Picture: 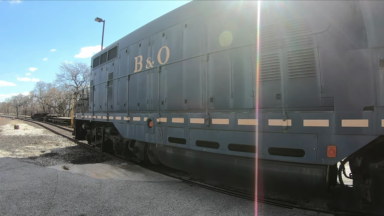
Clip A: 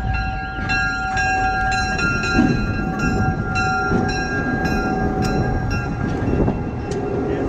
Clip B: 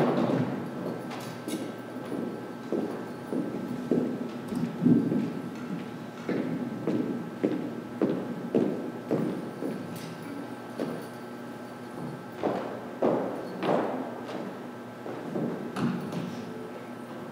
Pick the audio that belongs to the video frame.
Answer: A